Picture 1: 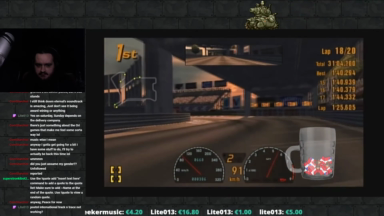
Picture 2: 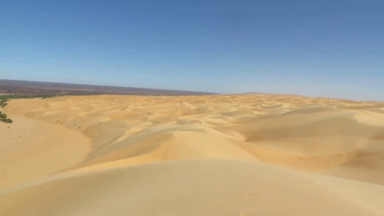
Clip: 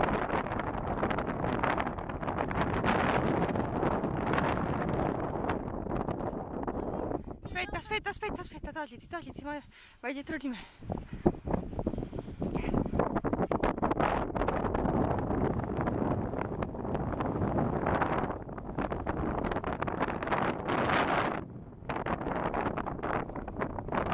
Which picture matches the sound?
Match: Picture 2